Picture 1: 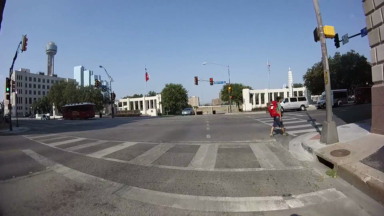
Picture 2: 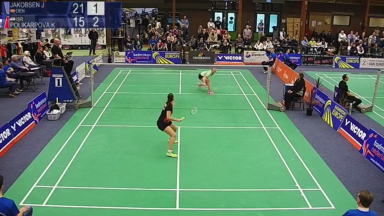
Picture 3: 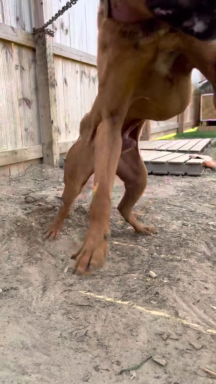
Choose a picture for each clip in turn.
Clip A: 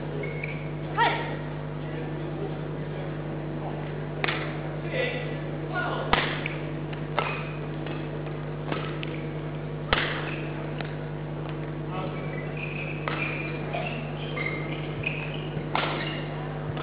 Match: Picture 2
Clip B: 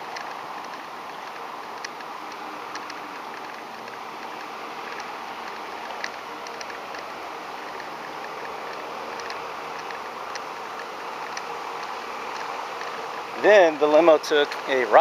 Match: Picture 1